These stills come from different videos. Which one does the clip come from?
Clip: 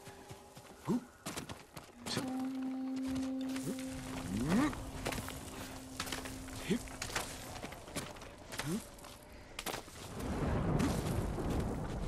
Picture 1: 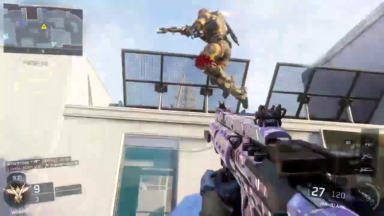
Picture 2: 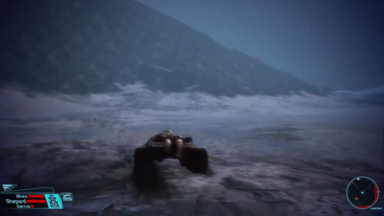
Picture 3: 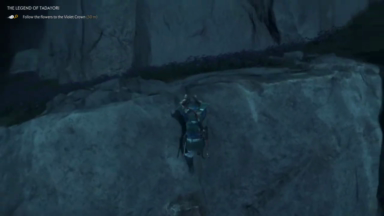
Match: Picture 3